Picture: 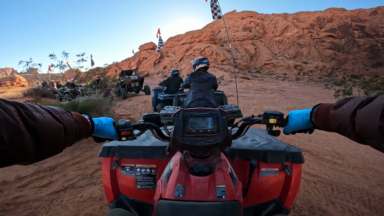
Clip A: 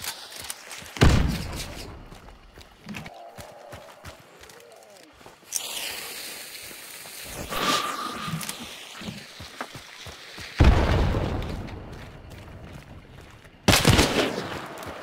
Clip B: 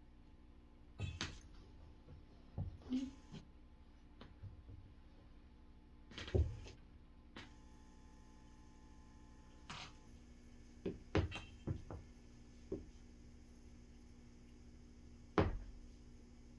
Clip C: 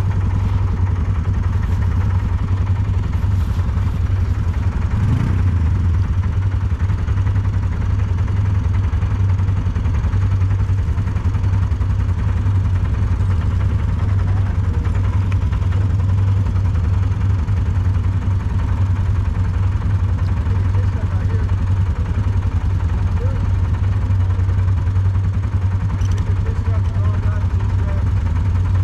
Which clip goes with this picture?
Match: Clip C